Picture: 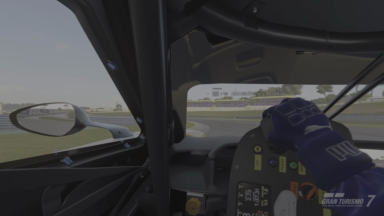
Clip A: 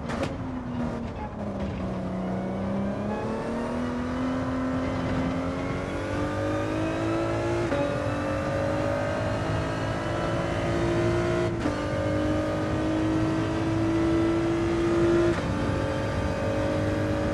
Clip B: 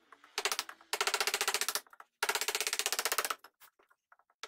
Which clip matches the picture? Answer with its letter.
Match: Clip A